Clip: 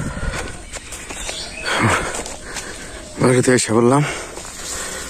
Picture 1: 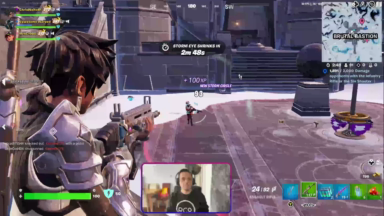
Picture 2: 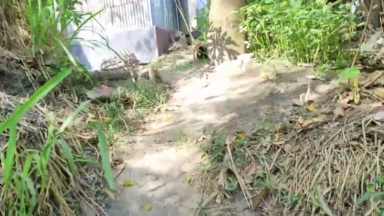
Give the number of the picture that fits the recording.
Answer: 2